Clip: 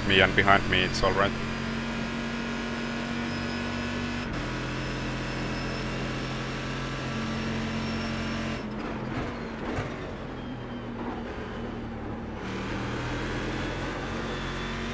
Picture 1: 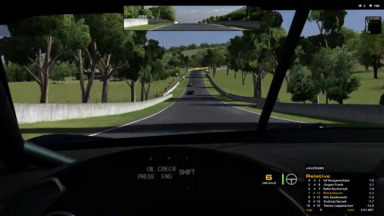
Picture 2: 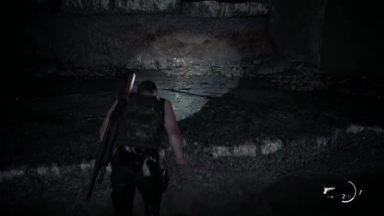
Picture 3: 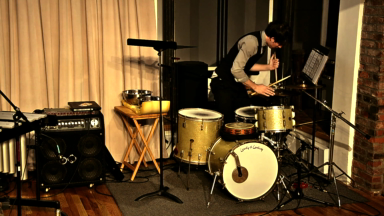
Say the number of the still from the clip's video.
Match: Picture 1